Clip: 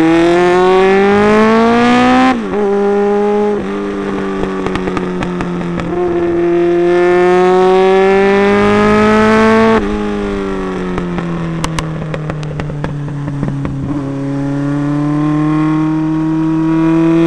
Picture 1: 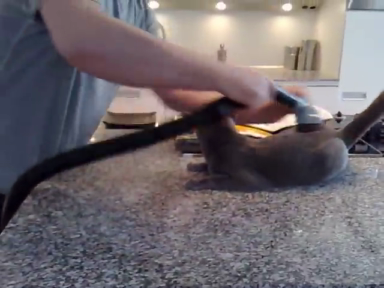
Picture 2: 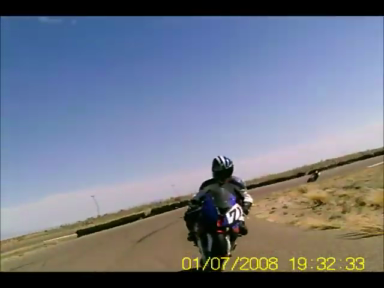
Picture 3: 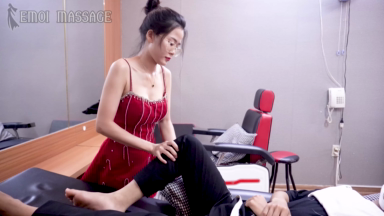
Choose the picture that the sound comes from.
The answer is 2